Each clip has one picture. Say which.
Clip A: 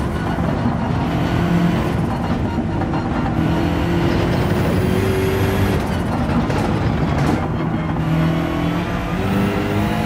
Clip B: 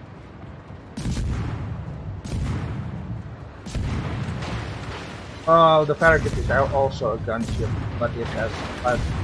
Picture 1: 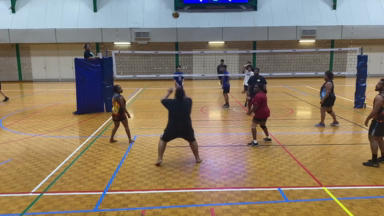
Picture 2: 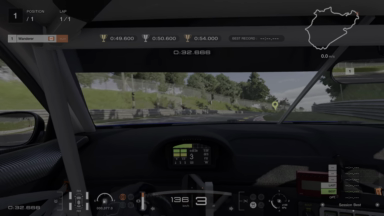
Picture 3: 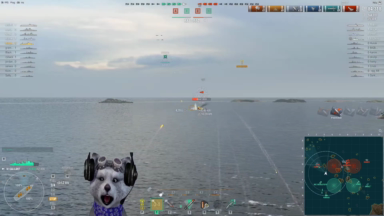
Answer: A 2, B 3